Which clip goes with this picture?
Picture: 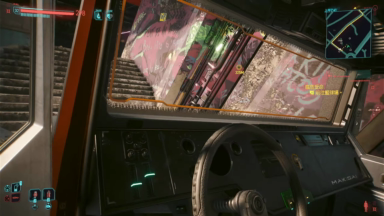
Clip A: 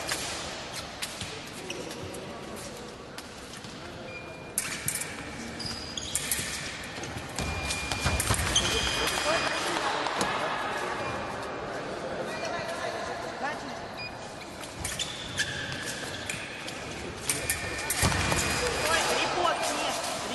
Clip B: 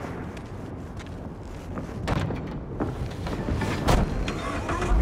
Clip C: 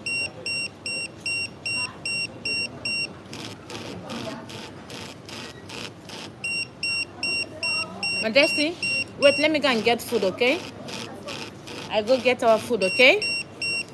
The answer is B